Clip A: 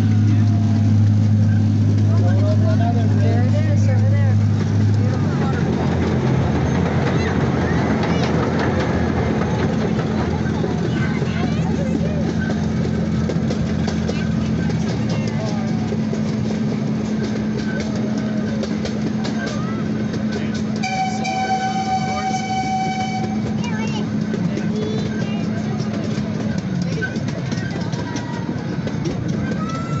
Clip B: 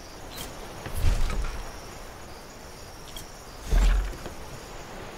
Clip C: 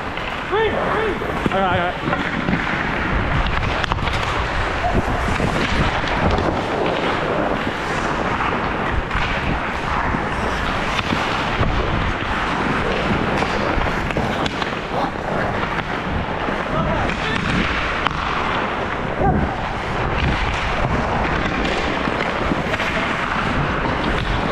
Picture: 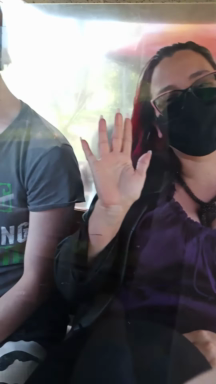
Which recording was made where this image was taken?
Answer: A